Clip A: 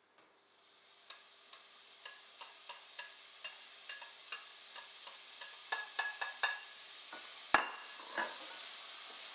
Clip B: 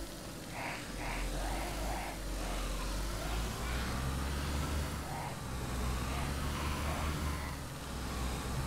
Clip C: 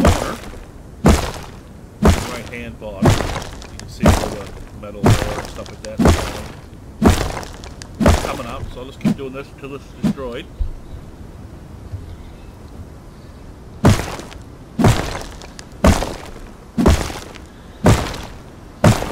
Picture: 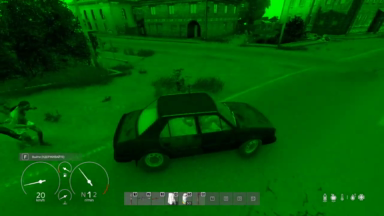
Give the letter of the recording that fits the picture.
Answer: B